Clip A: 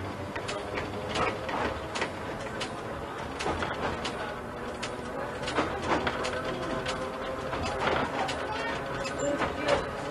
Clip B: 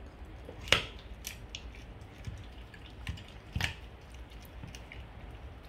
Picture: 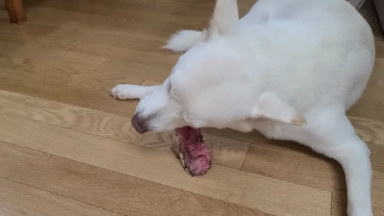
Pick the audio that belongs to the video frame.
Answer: B